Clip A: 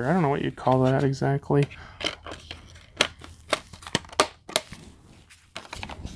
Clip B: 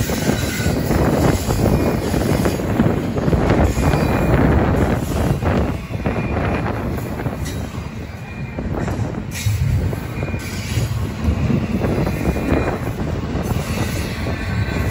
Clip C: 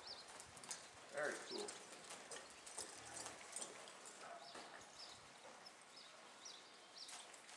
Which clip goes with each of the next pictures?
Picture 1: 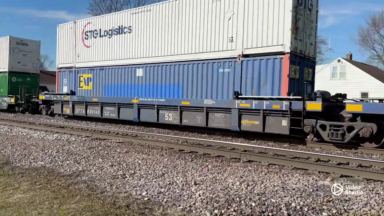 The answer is B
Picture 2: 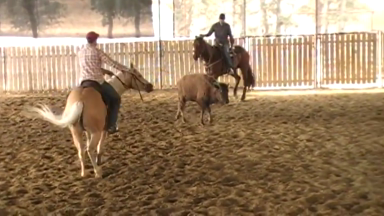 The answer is C